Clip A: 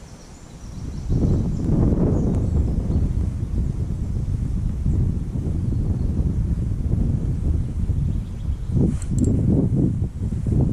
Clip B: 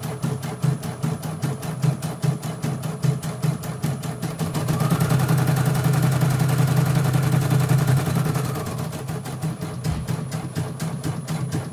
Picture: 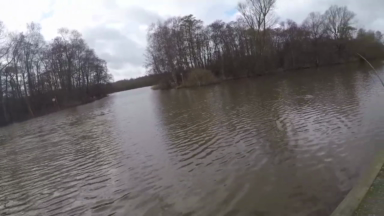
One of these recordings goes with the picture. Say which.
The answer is A